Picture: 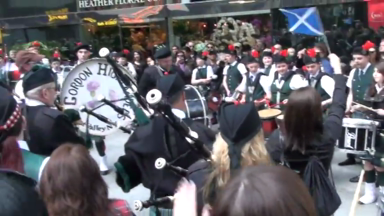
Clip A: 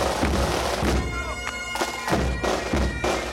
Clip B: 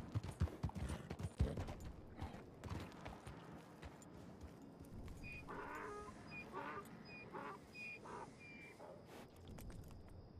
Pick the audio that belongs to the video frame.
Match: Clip A